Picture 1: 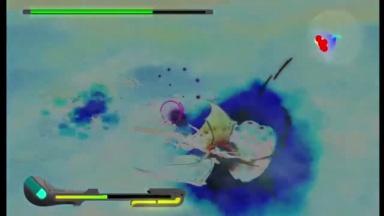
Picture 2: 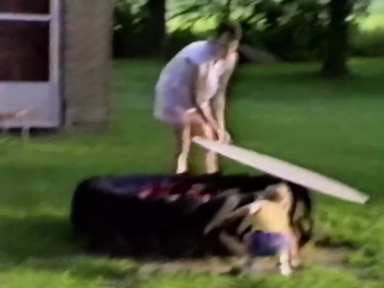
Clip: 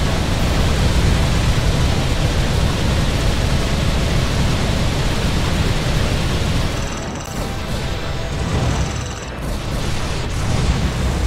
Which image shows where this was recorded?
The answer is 1